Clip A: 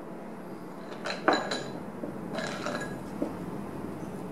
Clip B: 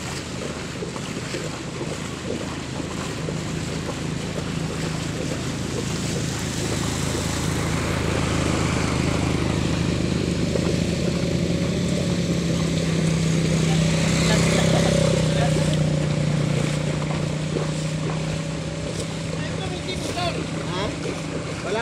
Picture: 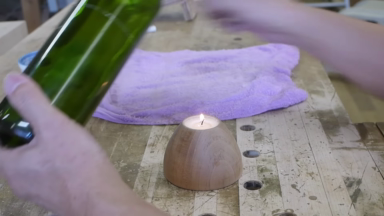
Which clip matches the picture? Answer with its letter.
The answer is A